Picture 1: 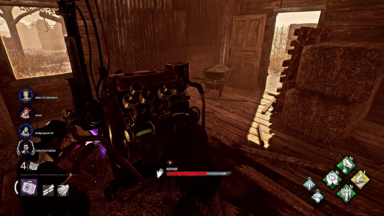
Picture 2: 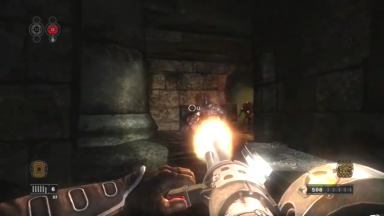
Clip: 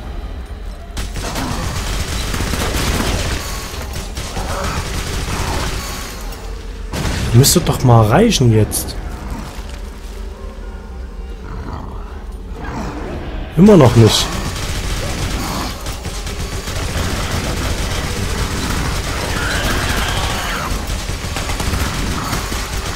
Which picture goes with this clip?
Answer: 2